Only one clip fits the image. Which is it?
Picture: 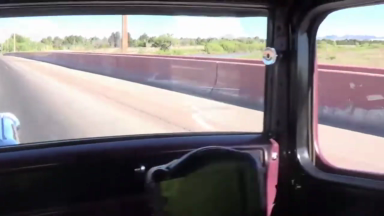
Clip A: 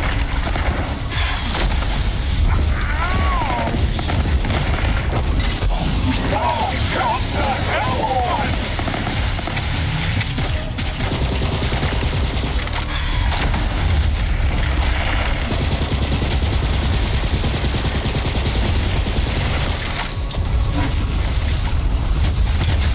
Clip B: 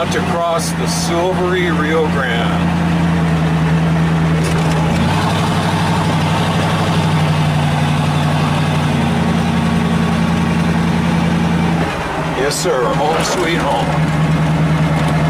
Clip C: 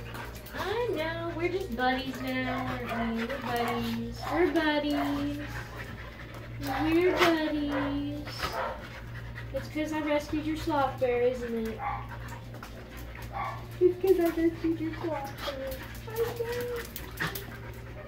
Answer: B